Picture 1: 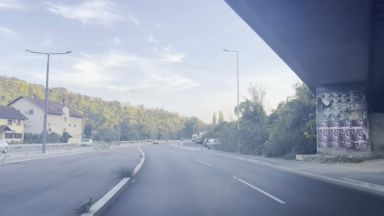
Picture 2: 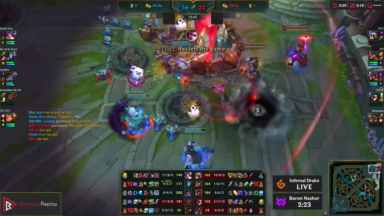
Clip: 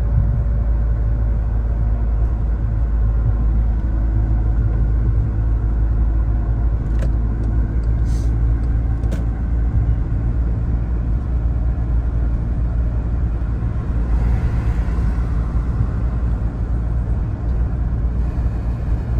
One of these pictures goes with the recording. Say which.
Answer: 1